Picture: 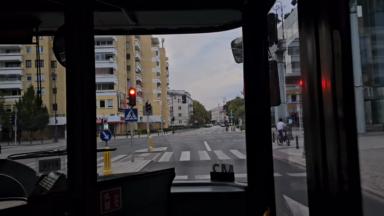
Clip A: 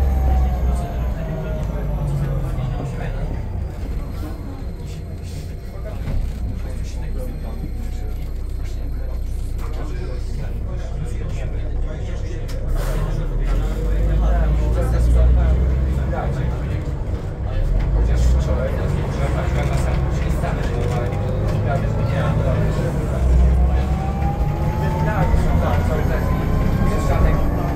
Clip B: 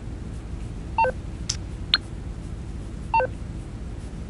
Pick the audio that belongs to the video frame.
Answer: A